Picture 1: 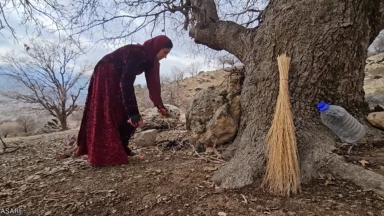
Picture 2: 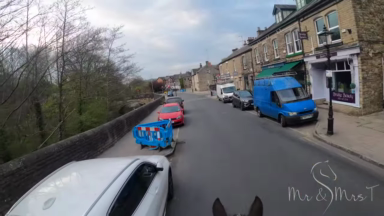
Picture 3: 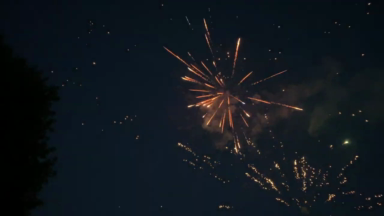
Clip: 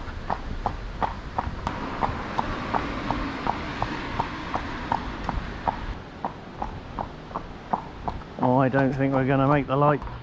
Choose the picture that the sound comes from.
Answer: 2